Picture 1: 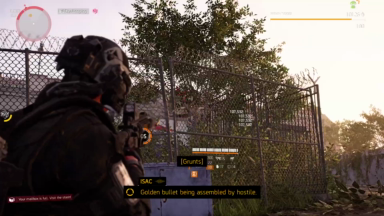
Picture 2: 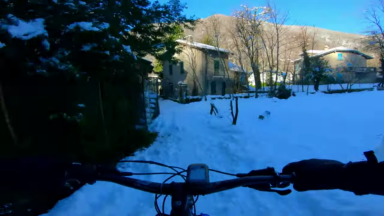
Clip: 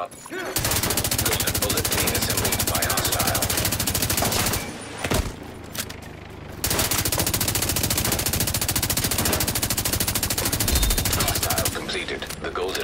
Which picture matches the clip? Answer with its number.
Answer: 1